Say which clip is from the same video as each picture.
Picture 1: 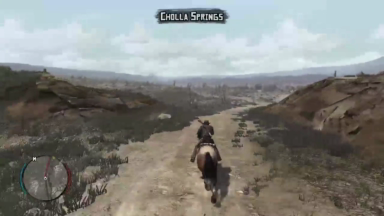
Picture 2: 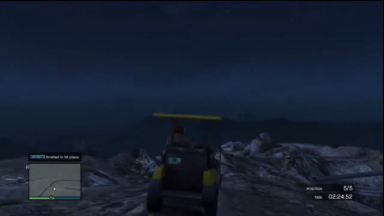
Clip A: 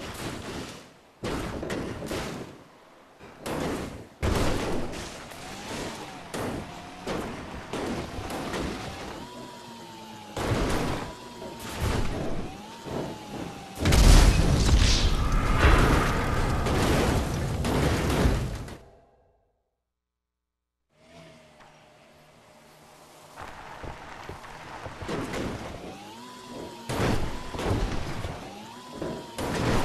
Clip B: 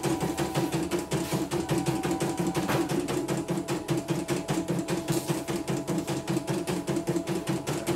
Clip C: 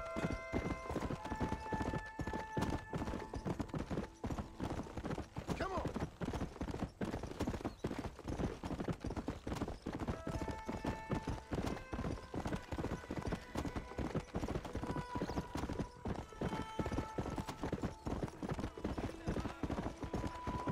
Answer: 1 C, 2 A